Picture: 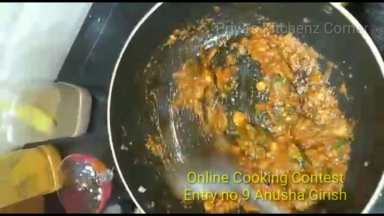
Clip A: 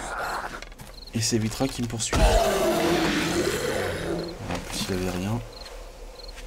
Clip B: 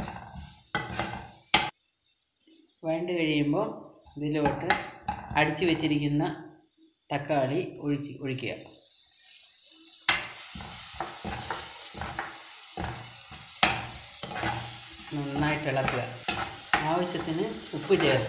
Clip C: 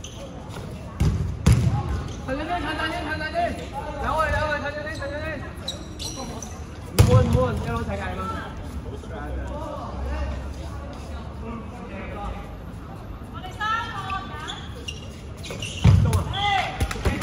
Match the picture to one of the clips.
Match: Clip B